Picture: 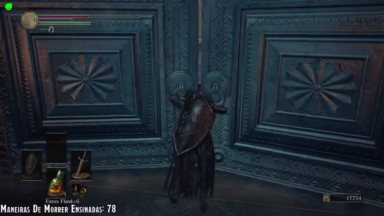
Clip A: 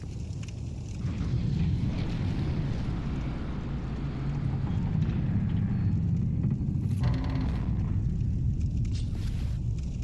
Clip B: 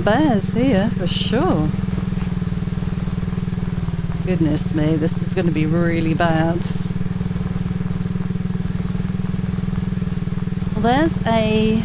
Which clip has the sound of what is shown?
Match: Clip A